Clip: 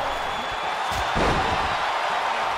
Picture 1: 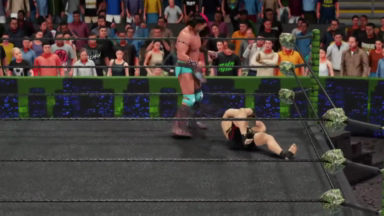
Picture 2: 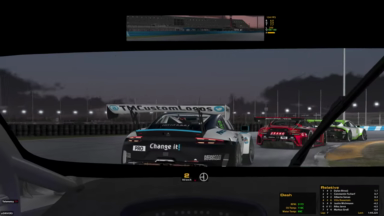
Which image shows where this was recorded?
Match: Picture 1